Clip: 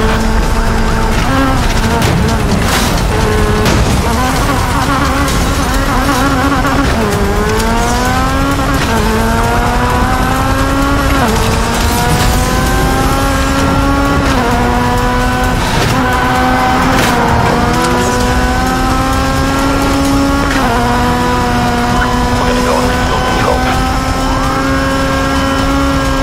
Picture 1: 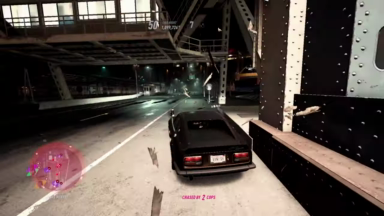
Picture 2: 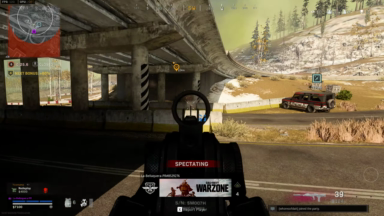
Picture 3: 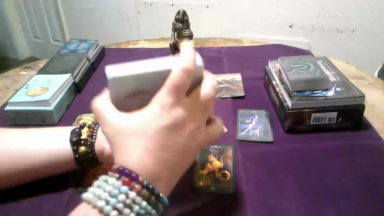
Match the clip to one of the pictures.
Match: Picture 1